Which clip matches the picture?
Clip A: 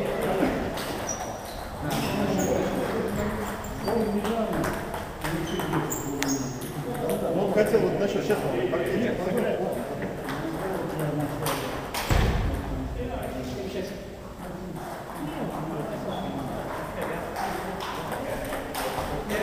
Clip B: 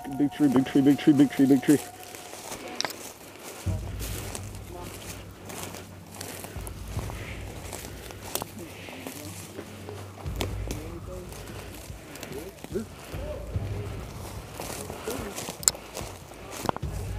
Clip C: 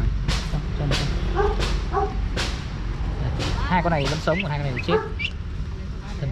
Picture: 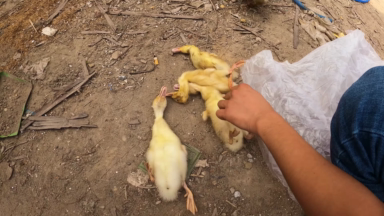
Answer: C